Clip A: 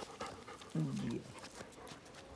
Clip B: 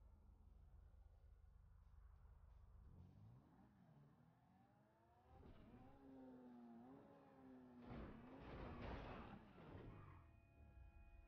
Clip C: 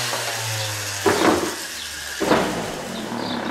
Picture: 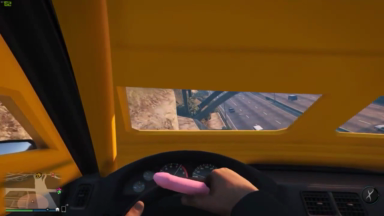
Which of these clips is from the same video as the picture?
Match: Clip B